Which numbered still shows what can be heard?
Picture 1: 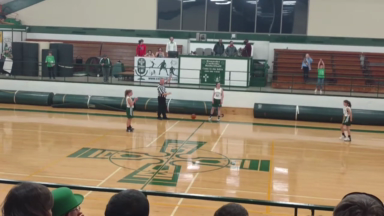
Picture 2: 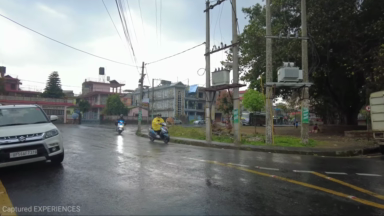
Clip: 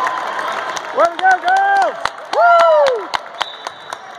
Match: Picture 1